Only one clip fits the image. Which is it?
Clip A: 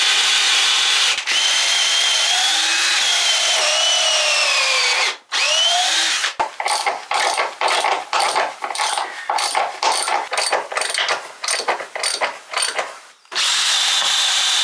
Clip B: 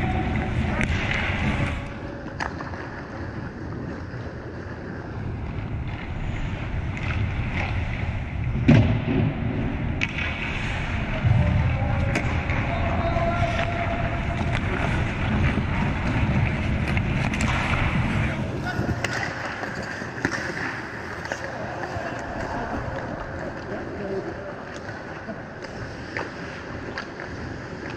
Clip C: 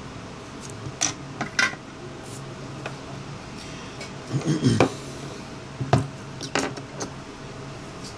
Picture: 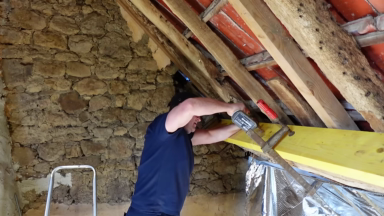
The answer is A